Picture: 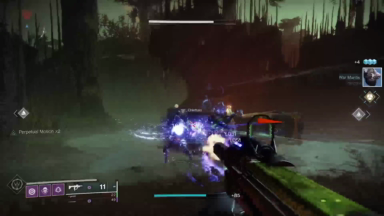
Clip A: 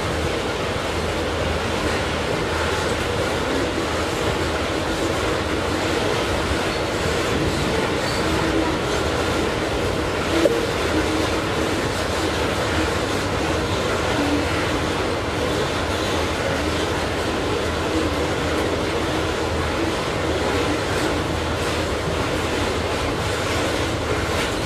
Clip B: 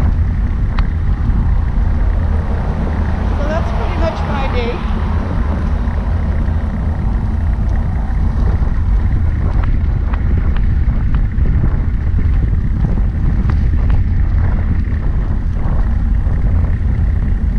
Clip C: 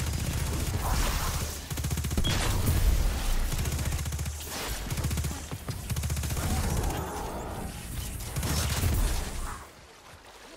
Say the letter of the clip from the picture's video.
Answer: C